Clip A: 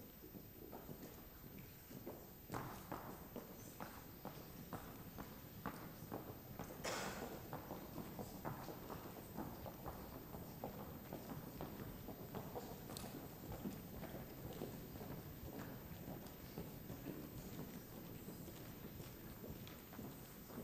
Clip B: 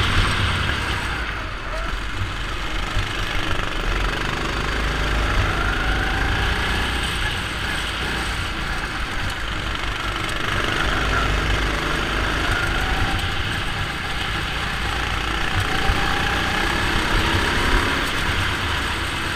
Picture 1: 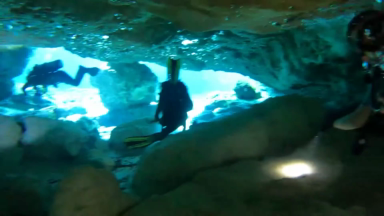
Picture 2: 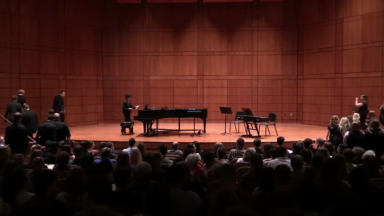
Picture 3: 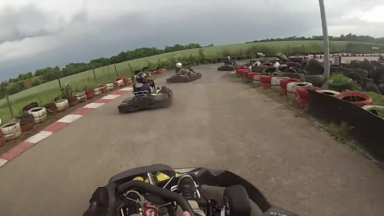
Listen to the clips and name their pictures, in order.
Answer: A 2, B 3